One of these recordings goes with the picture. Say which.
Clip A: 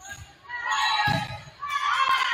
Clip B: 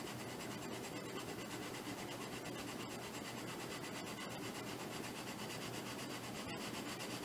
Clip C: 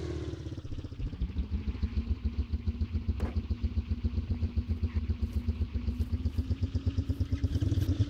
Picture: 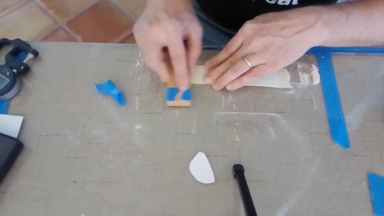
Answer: B